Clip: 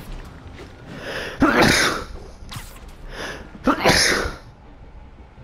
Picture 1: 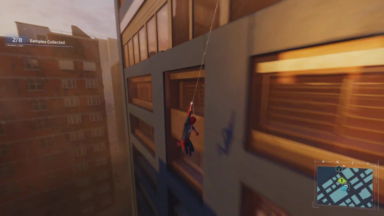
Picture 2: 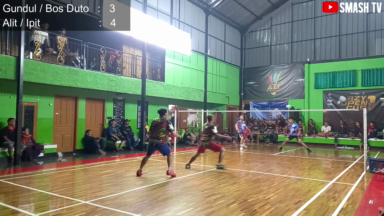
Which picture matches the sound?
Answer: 1